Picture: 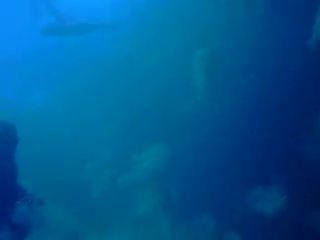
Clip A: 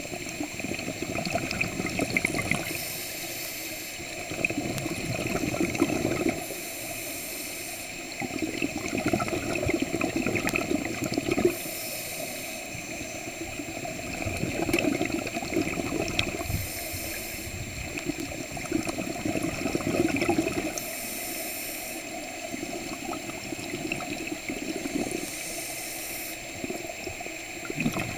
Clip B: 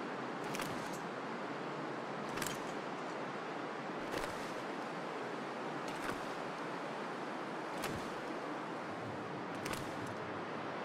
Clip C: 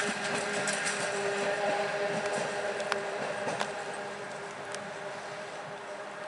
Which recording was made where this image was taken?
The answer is A